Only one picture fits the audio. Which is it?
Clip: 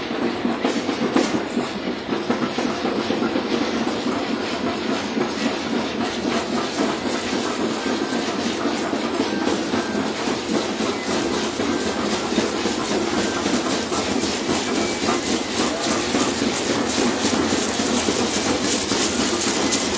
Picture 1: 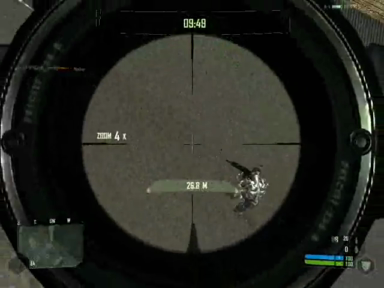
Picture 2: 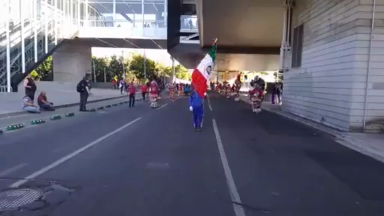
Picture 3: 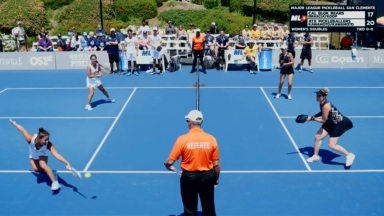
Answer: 2